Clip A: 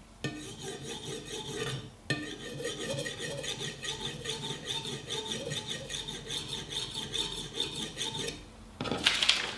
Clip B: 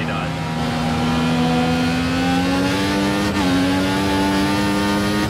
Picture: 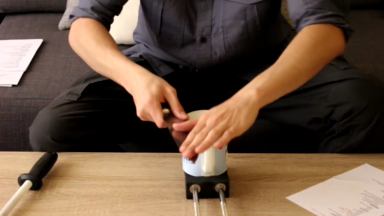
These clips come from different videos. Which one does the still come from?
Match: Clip A